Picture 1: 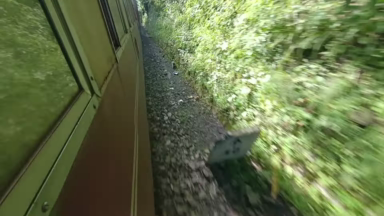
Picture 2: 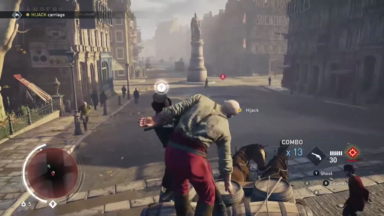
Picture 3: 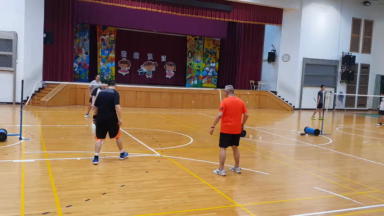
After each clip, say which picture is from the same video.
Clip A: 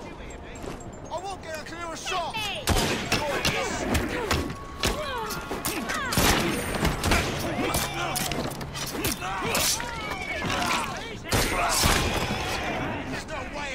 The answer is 2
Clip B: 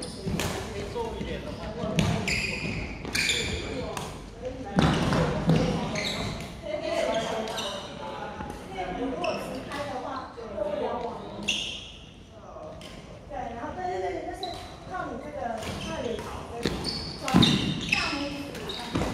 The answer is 3